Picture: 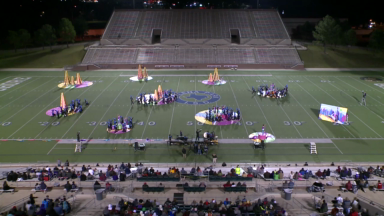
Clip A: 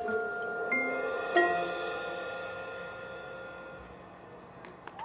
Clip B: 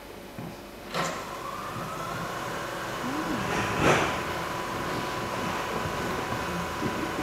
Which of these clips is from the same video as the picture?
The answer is A